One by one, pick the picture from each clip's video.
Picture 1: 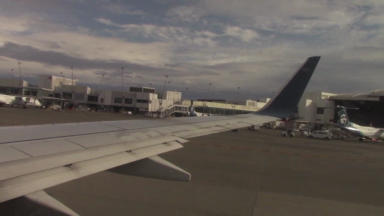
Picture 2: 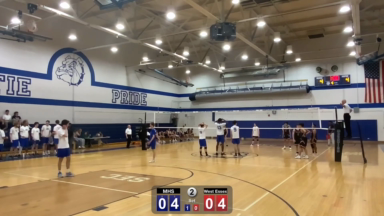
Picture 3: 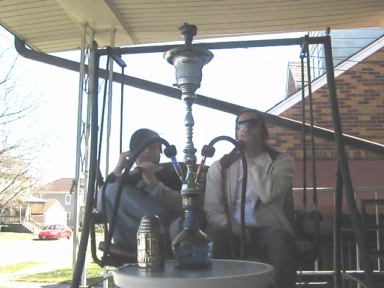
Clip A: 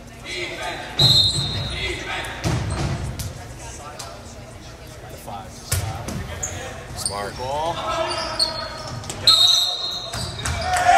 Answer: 2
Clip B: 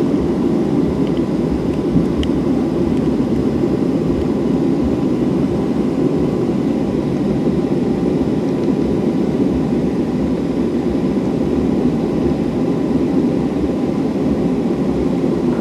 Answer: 1